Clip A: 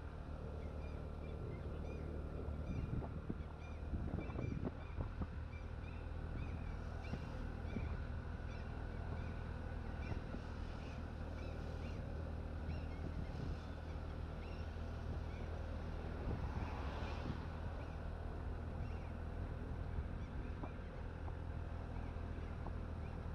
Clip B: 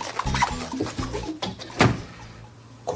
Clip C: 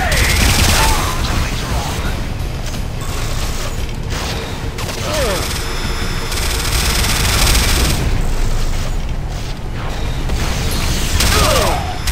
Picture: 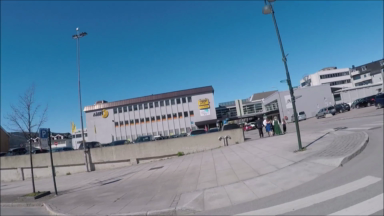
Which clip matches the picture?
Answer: A